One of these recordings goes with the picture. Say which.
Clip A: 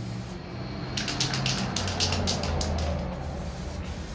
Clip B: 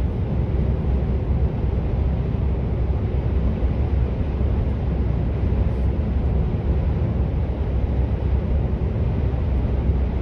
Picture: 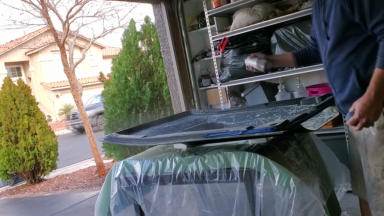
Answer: A